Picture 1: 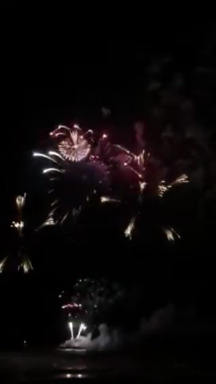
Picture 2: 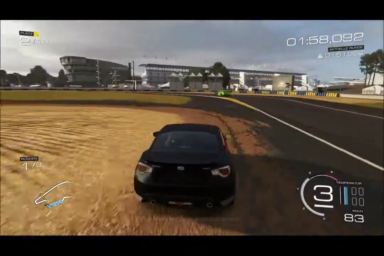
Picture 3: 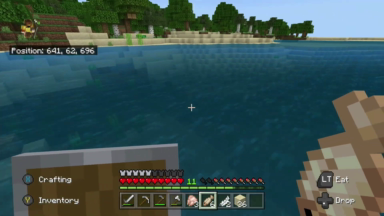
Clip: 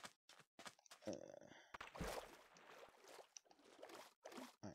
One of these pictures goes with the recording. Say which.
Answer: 3